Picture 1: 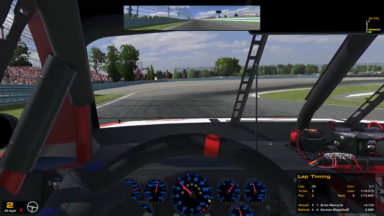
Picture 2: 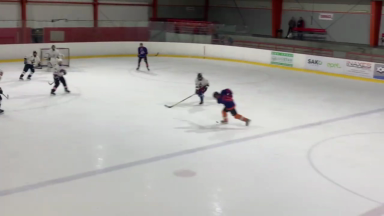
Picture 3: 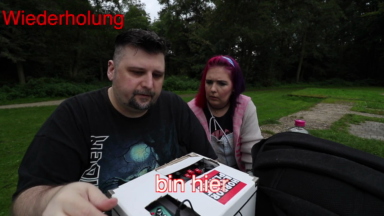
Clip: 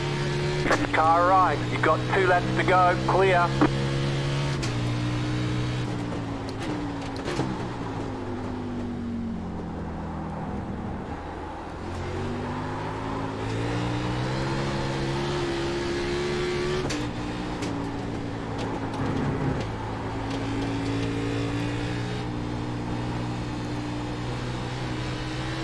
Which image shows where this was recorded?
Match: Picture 1